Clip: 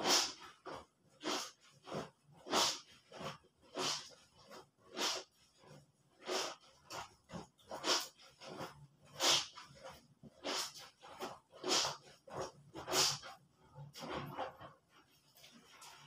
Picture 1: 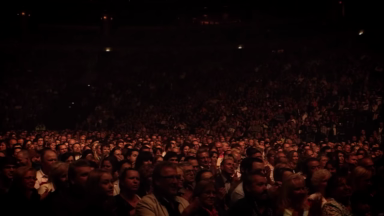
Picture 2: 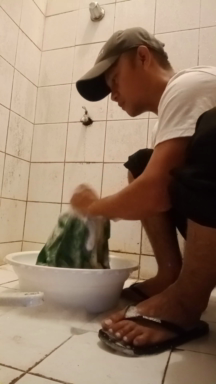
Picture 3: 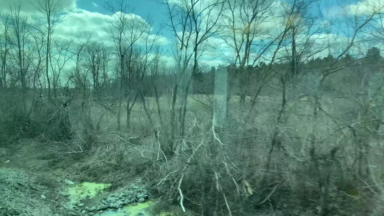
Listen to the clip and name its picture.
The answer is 2